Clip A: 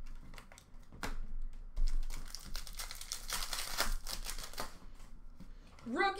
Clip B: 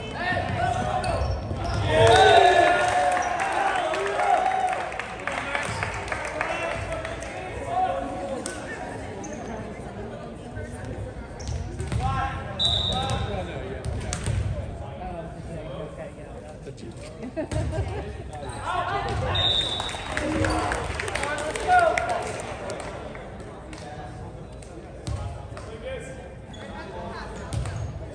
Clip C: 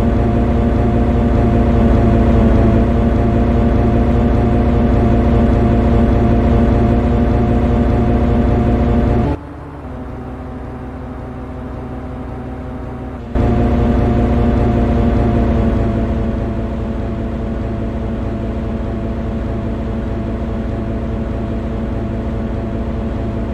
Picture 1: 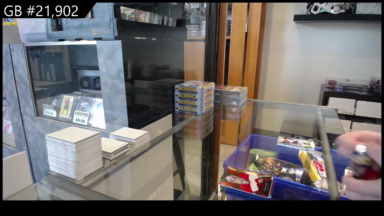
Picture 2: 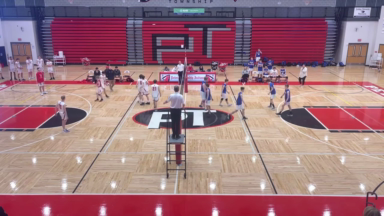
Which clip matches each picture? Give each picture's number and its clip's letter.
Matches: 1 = A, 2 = B